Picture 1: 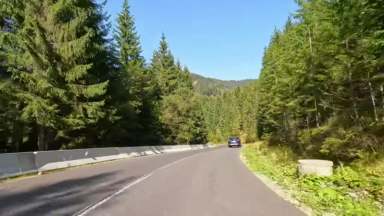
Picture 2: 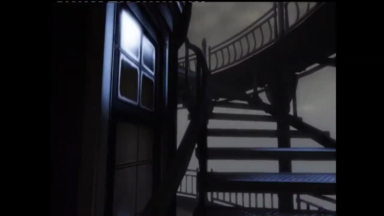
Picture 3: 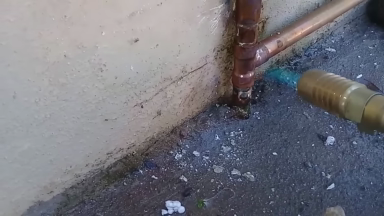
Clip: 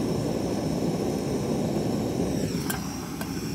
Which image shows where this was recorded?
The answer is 3